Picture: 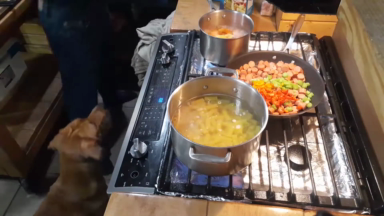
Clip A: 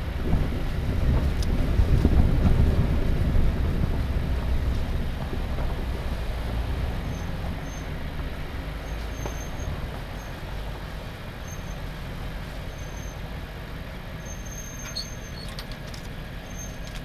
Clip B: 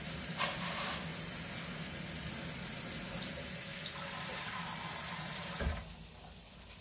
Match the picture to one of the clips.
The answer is B